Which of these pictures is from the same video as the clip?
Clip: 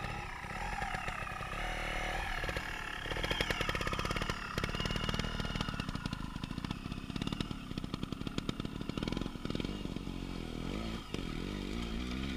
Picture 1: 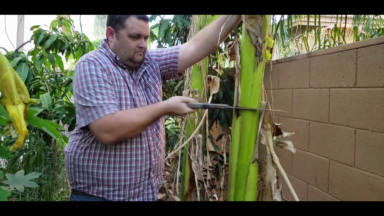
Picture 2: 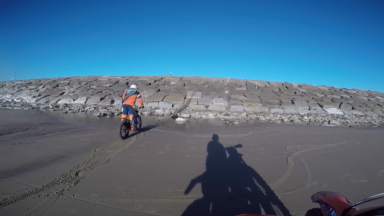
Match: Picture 2